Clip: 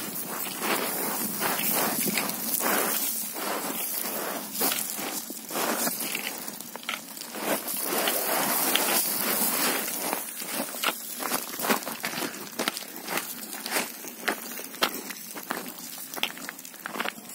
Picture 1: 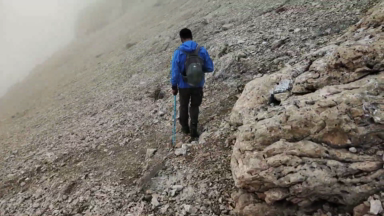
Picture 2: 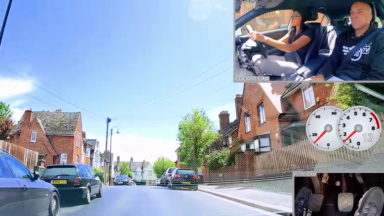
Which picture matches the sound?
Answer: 1